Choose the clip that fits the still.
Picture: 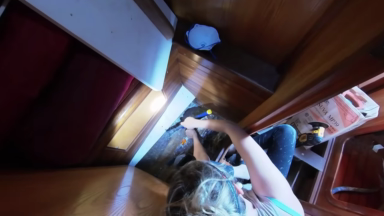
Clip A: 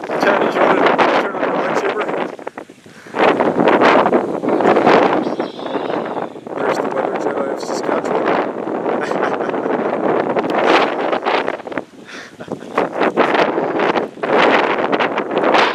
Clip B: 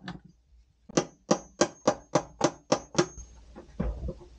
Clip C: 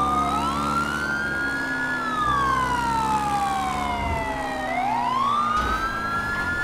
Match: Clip B